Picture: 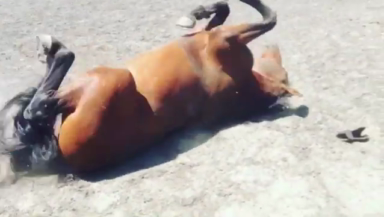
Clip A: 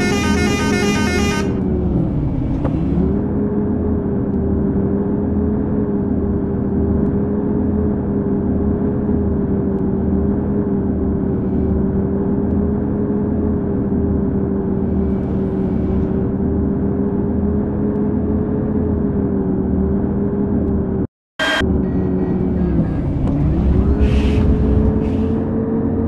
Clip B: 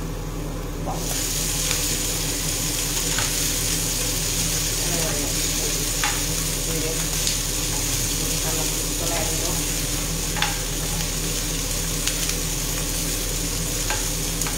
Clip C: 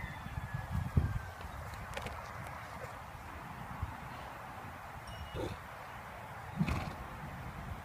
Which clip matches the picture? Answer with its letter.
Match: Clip C